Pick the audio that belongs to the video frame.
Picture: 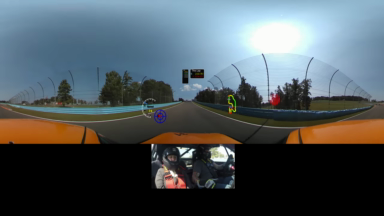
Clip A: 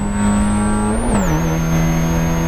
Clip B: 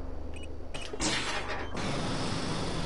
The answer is A